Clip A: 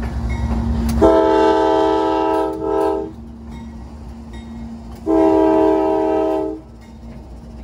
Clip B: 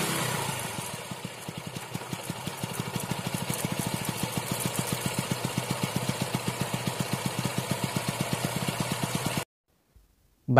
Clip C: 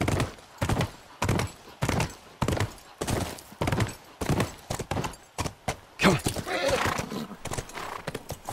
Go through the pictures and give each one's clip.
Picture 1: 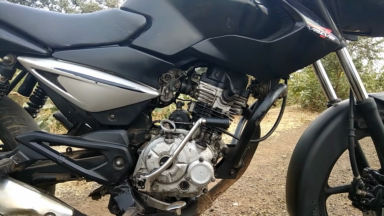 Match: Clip B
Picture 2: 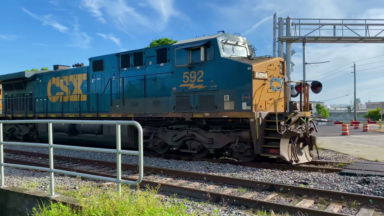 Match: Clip A